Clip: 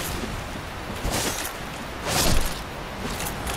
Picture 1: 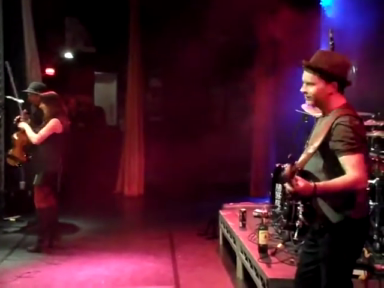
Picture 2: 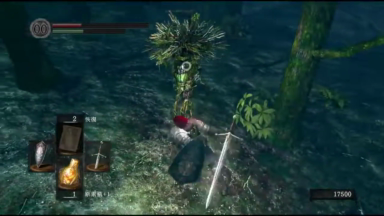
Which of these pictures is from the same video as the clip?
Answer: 2